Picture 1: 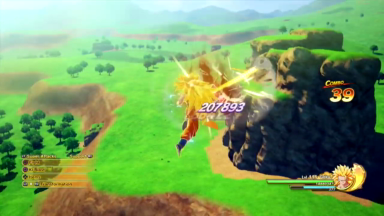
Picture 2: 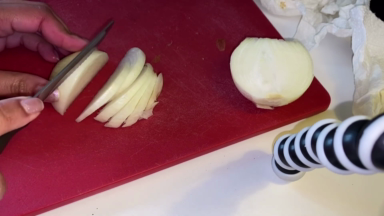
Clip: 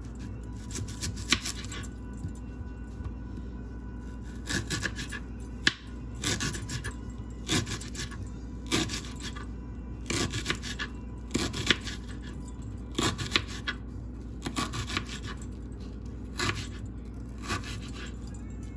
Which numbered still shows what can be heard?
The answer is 2